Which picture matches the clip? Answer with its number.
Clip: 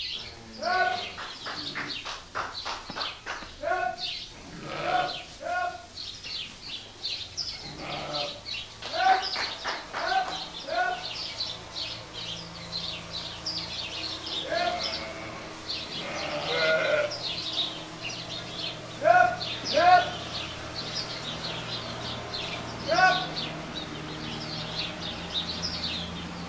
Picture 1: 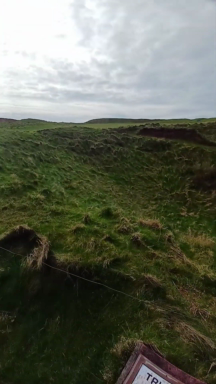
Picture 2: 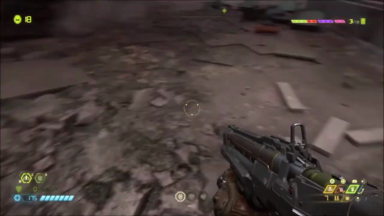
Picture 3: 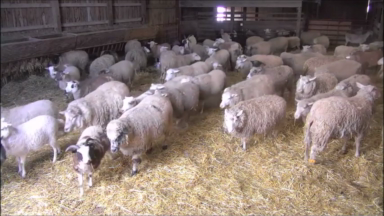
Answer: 3